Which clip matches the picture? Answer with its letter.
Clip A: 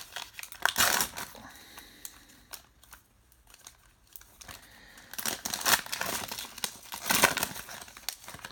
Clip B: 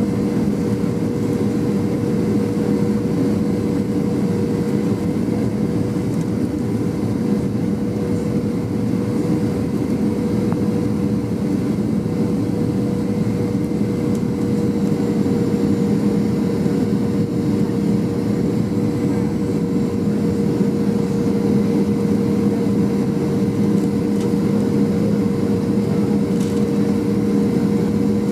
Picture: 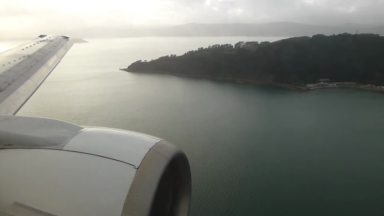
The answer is B